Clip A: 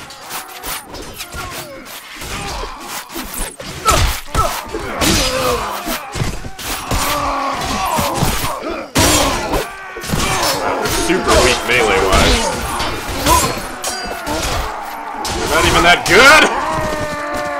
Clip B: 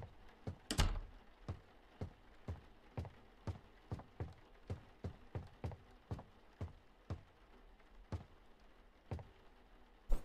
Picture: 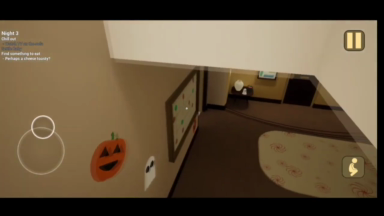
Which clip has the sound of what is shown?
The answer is B